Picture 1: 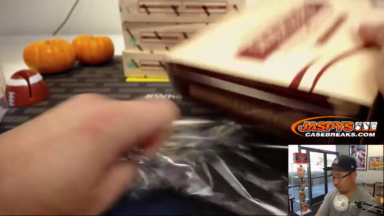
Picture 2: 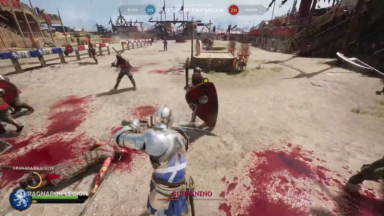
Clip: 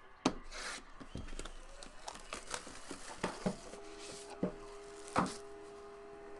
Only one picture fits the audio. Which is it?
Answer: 1